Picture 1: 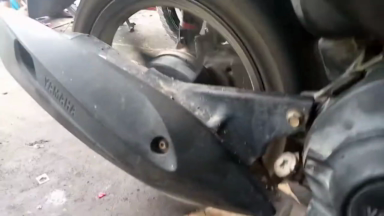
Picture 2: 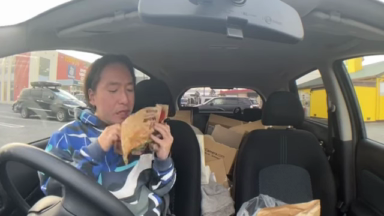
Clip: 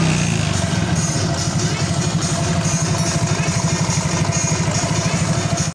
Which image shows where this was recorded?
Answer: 1